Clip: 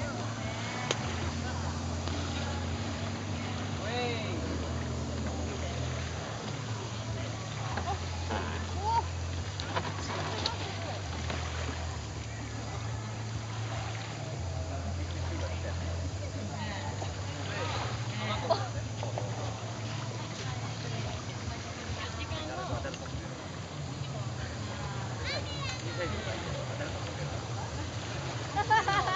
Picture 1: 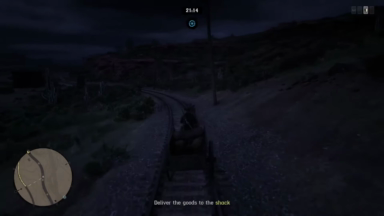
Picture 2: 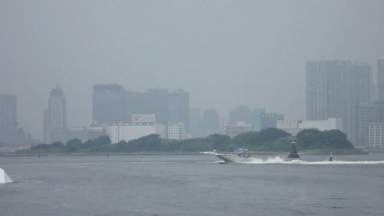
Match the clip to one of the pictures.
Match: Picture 2